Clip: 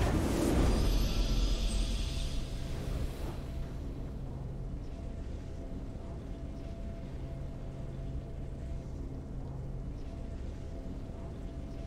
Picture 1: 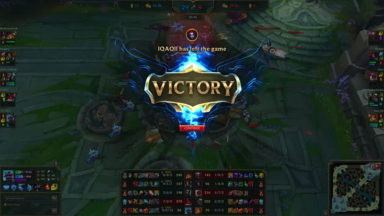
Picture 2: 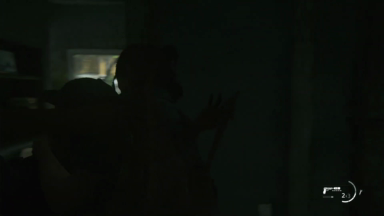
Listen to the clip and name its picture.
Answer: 1